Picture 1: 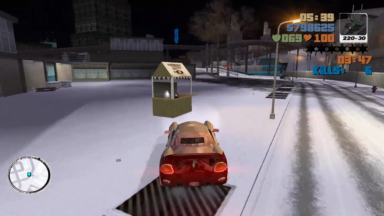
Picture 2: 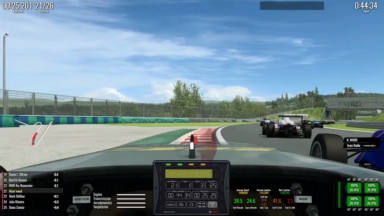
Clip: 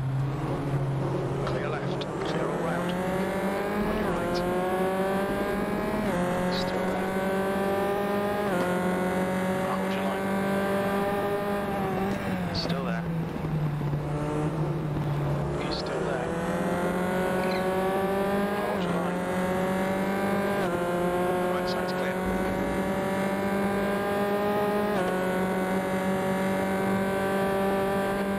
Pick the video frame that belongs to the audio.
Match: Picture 2